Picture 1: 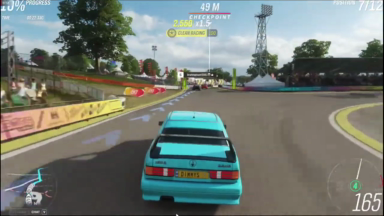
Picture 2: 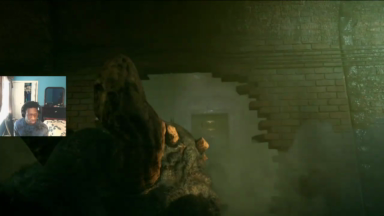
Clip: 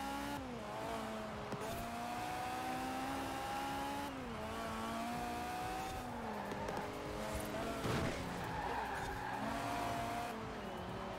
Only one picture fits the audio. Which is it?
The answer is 1